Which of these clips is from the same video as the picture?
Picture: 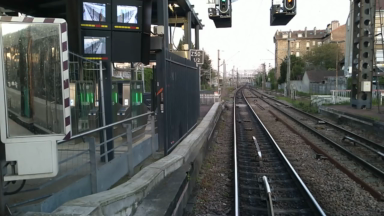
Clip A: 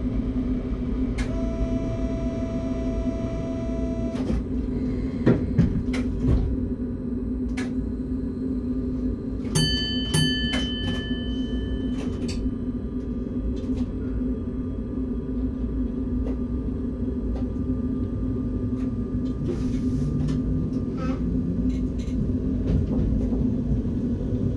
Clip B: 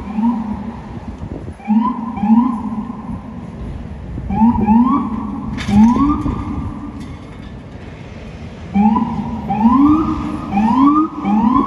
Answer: A